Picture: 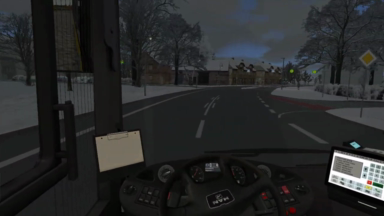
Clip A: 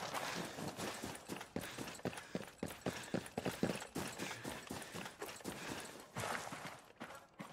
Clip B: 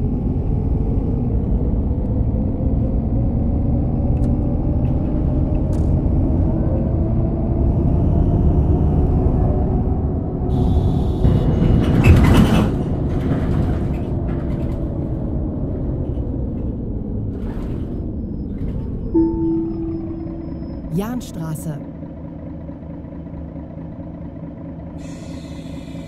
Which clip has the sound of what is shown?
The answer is B